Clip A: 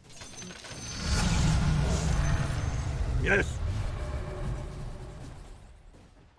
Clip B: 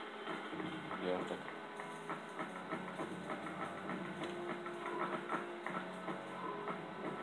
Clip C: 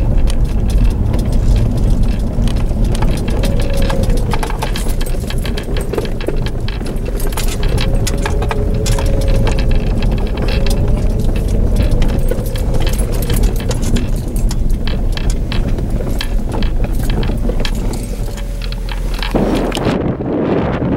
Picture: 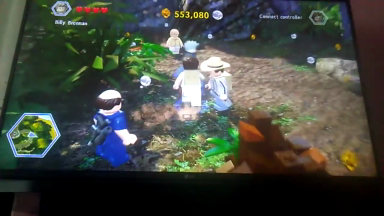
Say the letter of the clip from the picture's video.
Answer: B